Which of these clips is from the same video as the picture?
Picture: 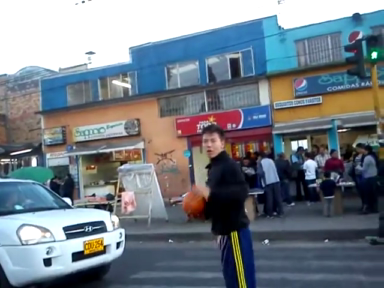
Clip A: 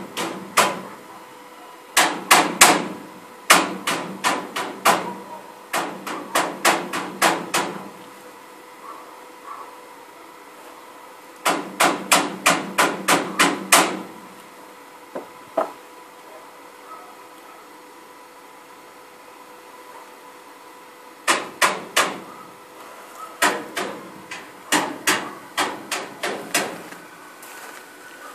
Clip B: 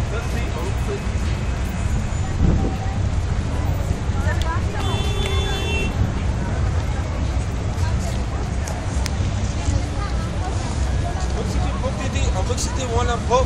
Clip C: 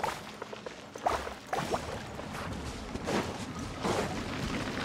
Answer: B